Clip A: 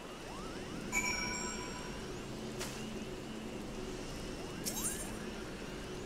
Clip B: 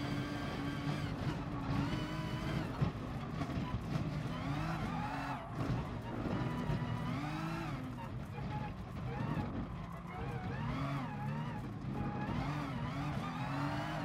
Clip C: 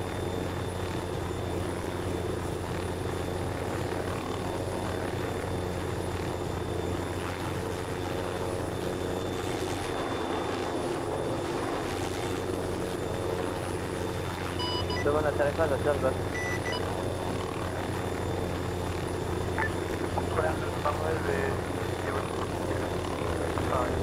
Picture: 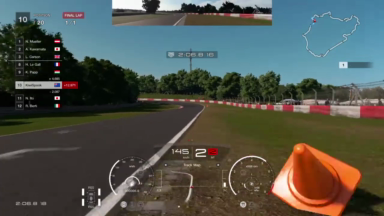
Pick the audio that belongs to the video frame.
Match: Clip B